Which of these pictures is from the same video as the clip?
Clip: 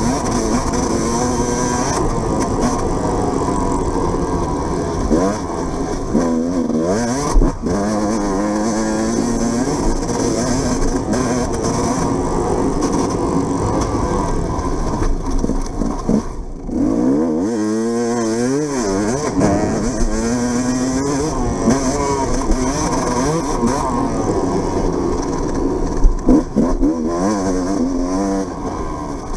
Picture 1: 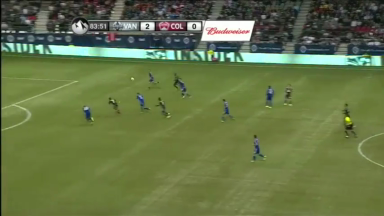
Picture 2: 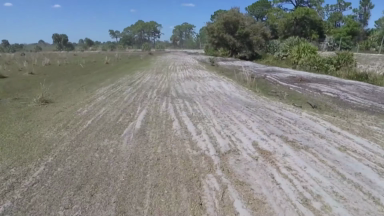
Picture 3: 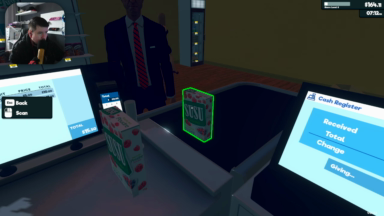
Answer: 2